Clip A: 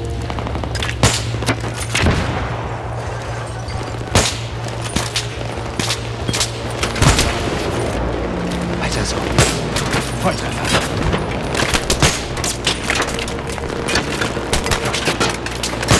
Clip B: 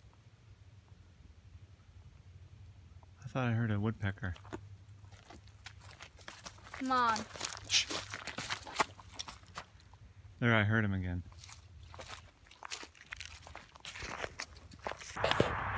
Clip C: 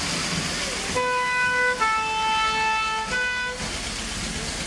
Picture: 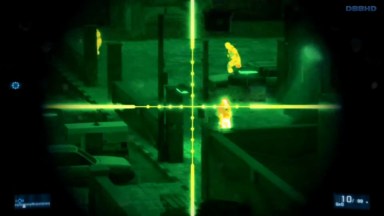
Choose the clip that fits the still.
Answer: A